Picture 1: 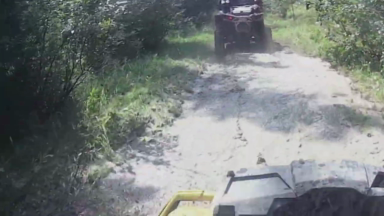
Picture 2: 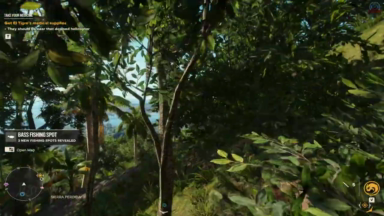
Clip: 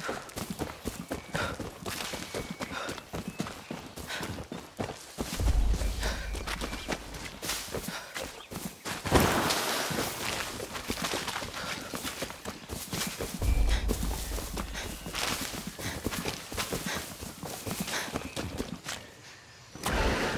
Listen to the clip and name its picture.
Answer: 2